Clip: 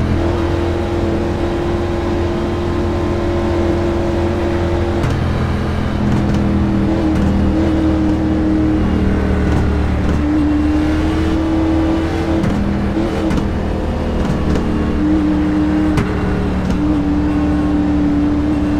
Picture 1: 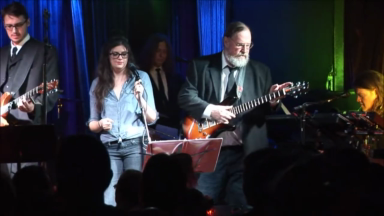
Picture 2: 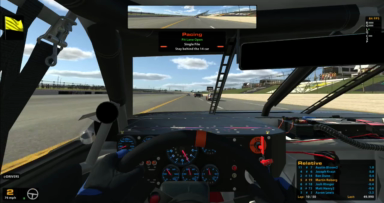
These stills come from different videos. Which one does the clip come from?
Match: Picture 2